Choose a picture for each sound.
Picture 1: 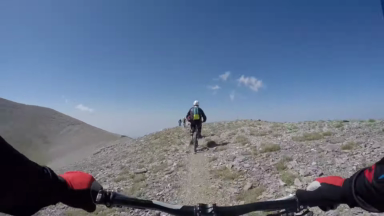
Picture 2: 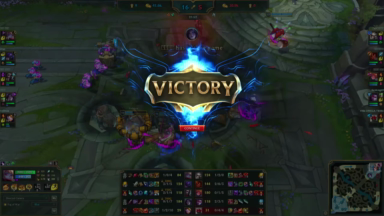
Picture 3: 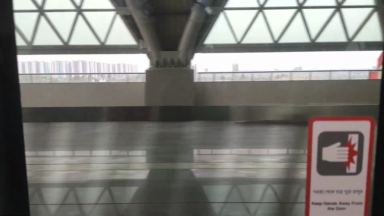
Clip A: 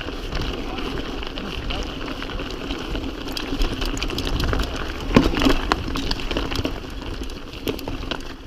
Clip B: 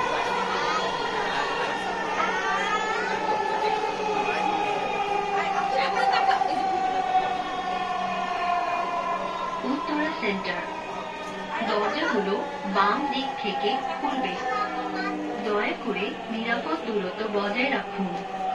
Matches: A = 1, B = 3